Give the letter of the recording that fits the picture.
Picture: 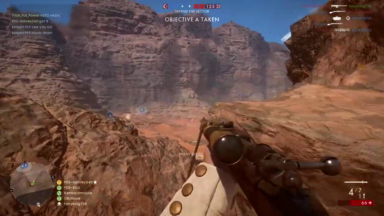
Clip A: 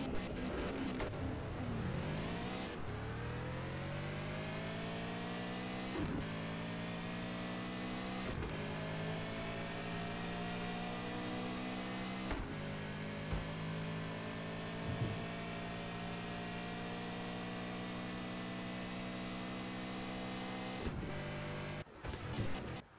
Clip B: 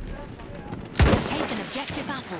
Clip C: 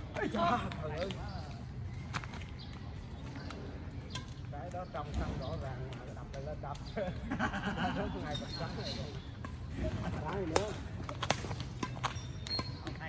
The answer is B